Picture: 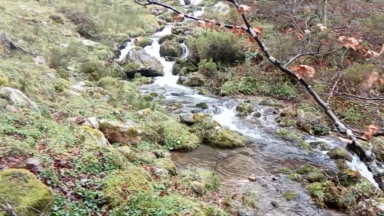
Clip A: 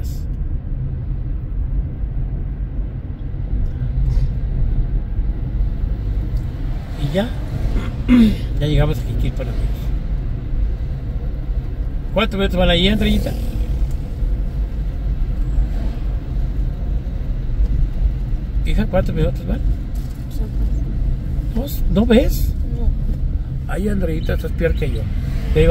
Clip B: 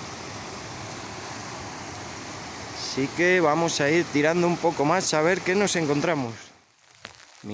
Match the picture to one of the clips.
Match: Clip B